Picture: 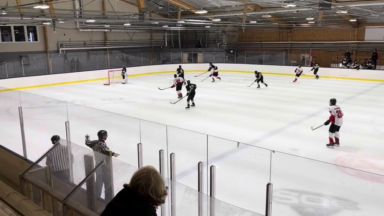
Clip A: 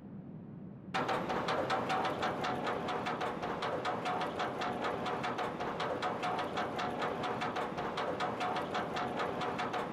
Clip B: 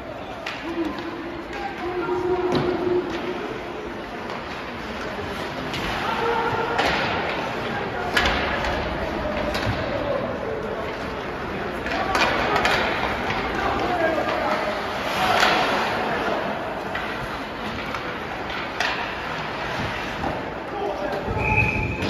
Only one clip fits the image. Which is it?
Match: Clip B